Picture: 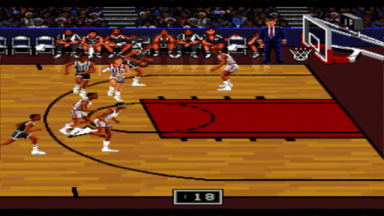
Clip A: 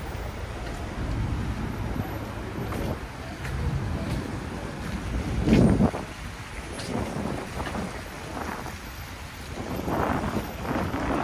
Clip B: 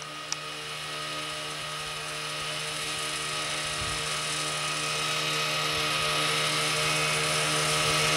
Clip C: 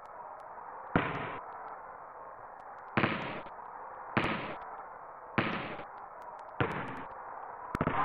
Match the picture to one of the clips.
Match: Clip C